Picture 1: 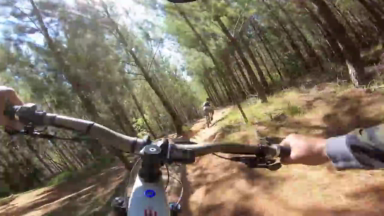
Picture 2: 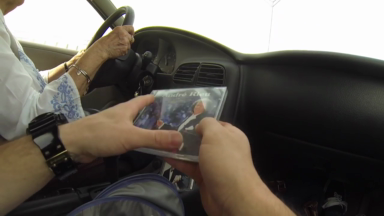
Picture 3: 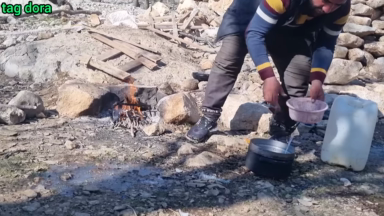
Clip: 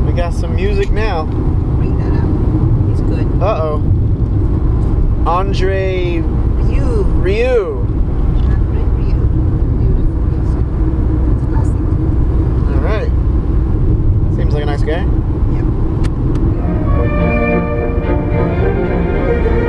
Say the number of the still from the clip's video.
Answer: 2